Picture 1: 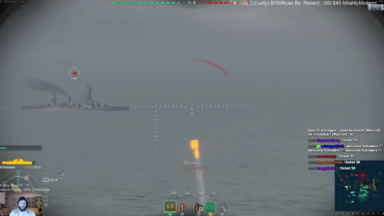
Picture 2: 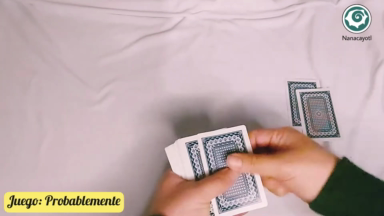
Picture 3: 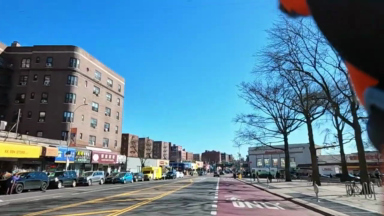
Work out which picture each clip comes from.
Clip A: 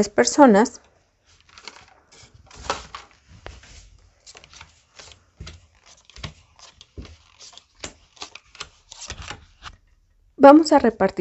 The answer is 2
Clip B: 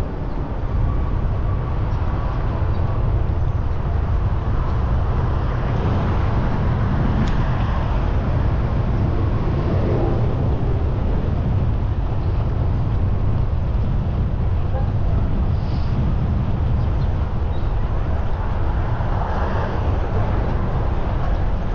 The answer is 3